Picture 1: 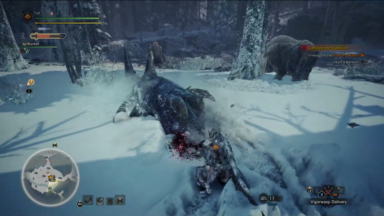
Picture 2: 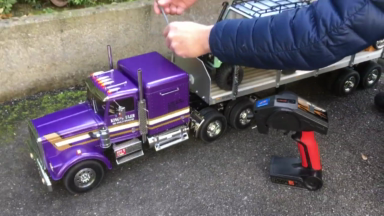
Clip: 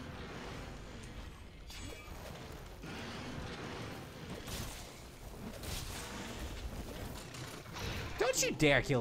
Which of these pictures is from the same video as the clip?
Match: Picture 1